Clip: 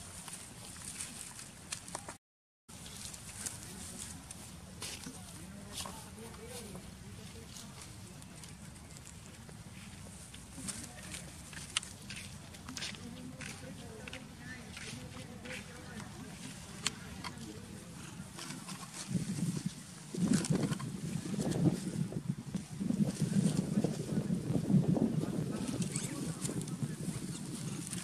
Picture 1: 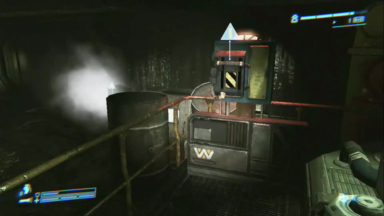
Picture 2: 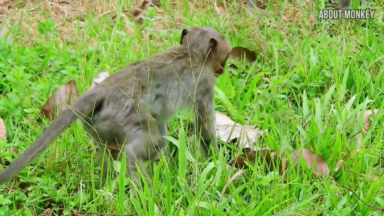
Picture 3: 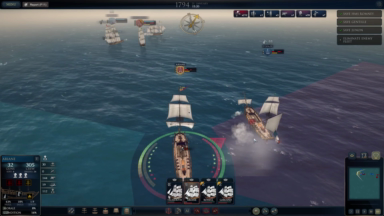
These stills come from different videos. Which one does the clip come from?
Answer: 2